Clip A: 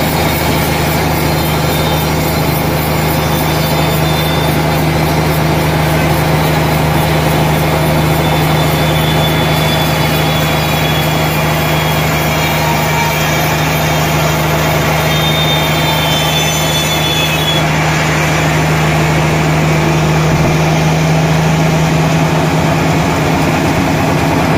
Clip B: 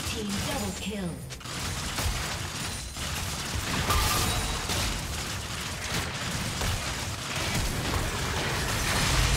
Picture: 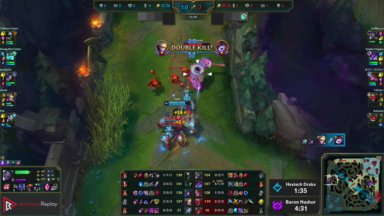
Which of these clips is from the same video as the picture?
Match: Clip B